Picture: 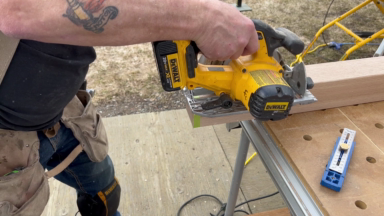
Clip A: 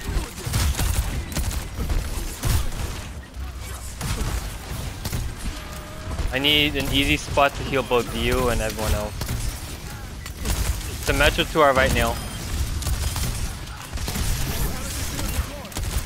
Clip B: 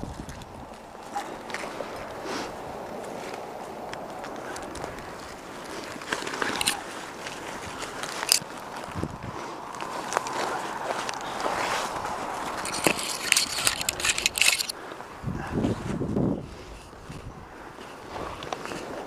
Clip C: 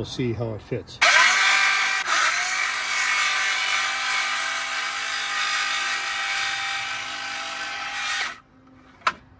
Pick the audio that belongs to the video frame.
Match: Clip C